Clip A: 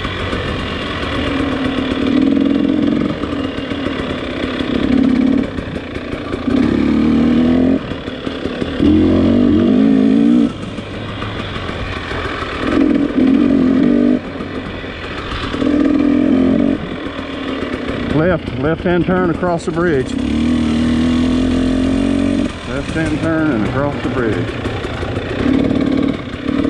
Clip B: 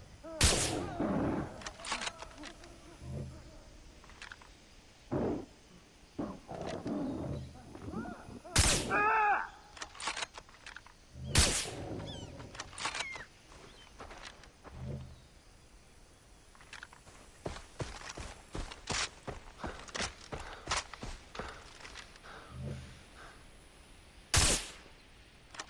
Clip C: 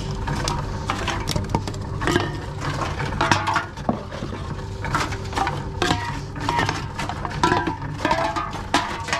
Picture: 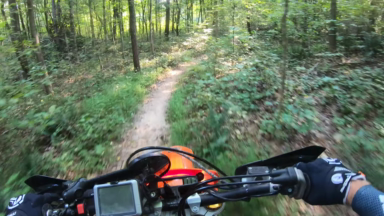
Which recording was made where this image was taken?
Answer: A